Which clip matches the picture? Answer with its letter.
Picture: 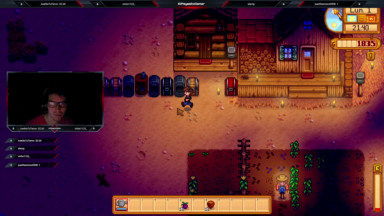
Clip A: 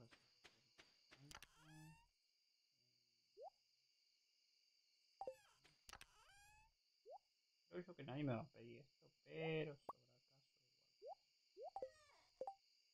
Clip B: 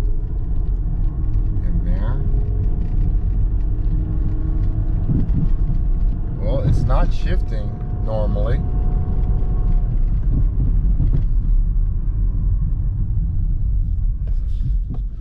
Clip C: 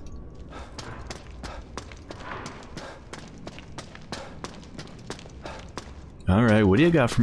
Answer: A